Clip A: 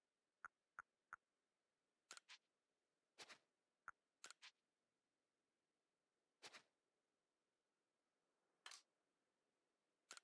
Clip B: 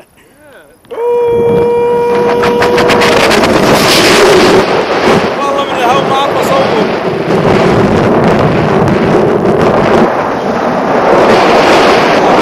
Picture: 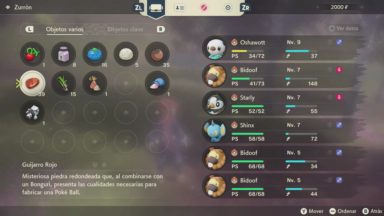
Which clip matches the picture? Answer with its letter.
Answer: A